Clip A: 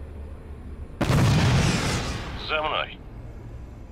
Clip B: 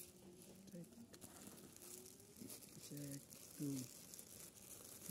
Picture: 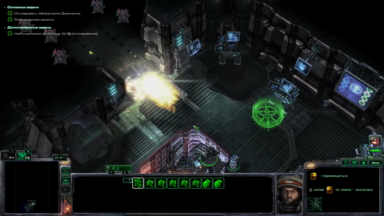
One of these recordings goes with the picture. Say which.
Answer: A